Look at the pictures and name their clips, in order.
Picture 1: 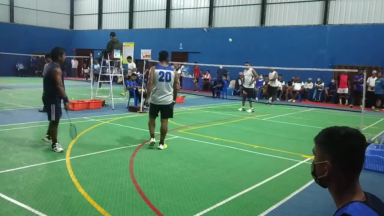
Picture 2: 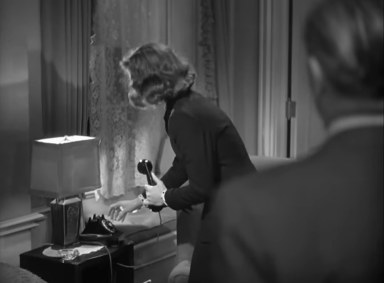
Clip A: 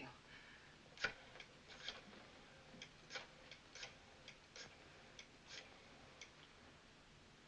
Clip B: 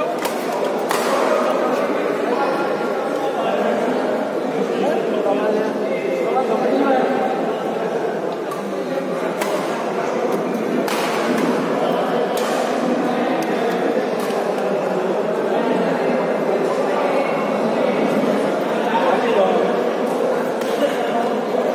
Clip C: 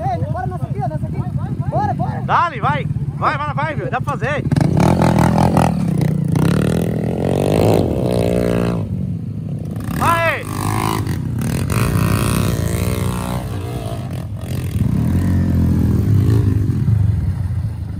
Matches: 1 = B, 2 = A